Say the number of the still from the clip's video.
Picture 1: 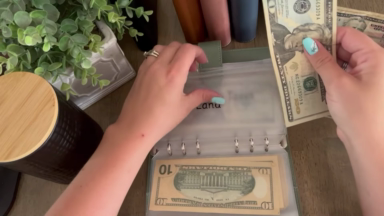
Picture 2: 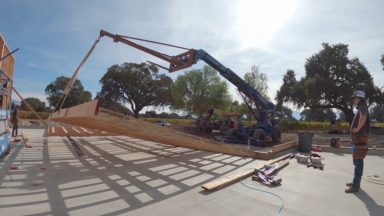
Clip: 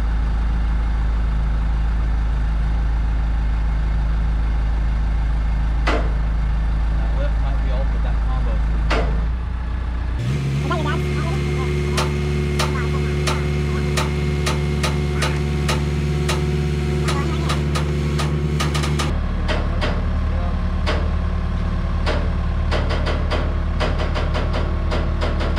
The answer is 2